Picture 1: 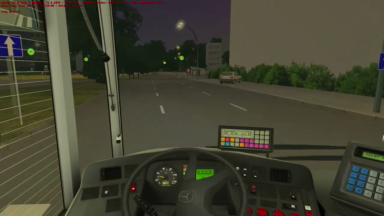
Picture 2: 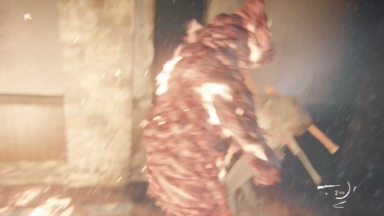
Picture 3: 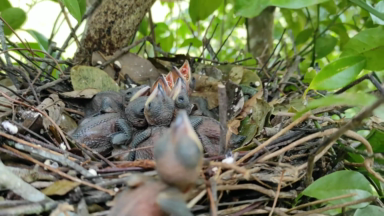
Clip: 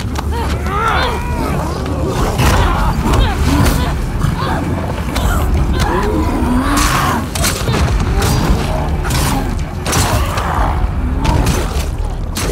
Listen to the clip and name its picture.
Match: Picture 2